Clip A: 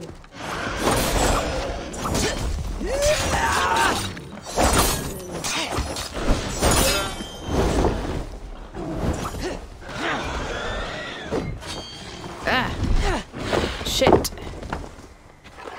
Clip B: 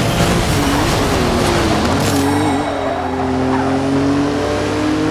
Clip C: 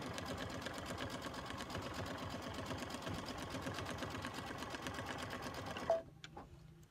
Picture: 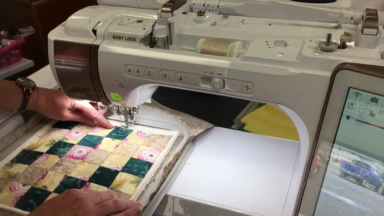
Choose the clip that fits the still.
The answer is C